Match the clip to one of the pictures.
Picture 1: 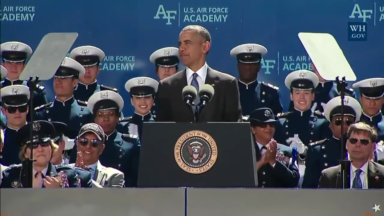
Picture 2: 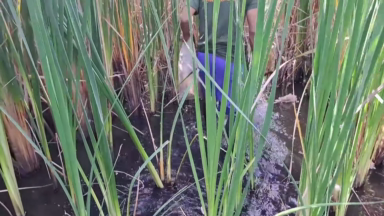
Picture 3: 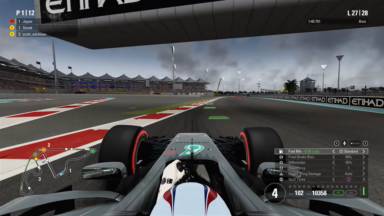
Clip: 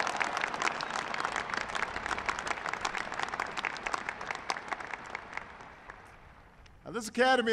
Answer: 1